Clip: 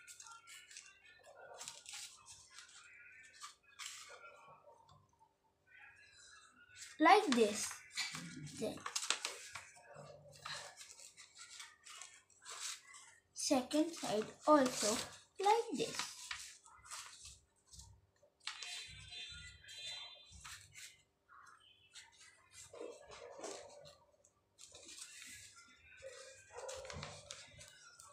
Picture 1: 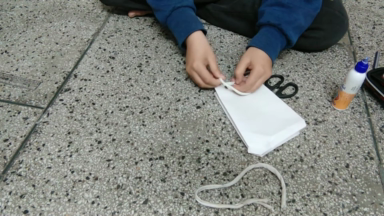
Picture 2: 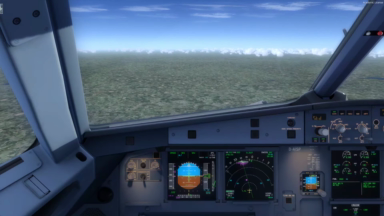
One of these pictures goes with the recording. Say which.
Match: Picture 1